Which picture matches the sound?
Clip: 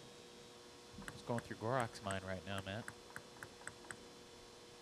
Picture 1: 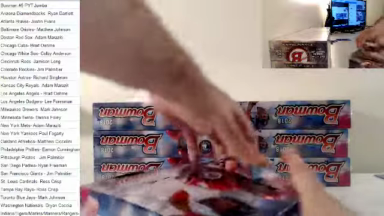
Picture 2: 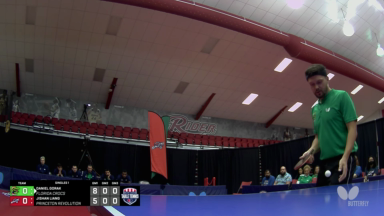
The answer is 2